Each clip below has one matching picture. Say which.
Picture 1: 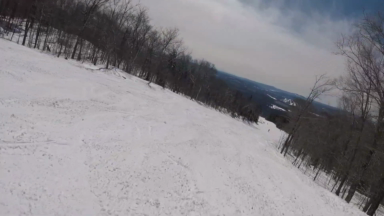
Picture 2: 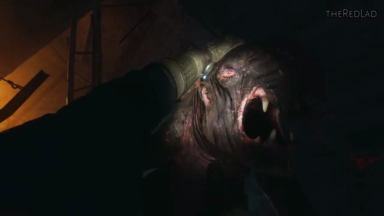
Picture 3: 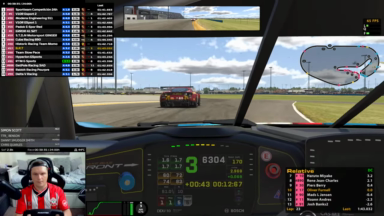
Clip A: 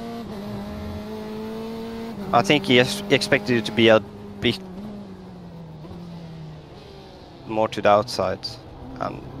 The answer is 3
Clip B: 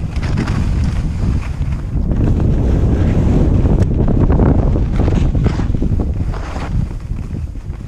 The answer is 1